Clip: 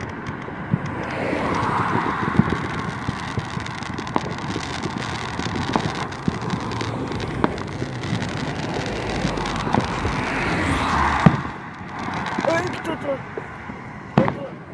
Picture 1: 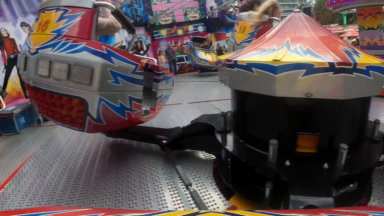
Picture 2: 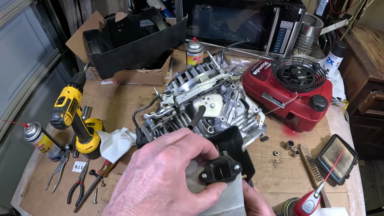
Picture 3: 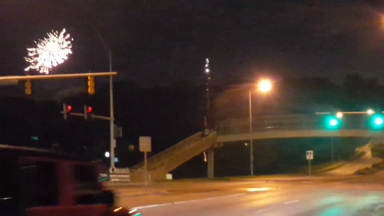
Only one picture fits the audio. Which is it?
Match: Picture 3